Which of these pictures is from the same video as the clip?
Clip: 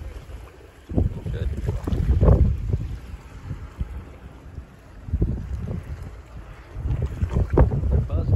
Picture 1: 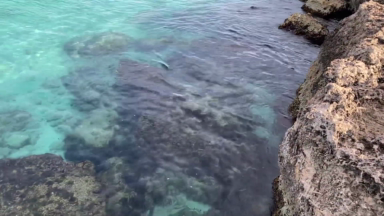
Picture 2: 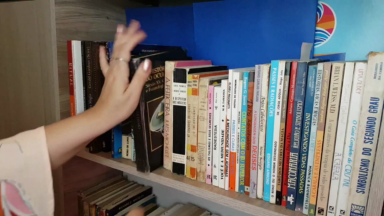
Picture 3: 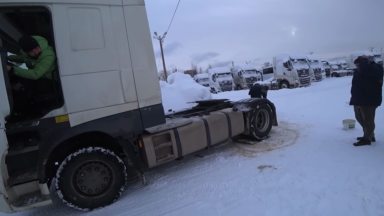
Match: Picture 1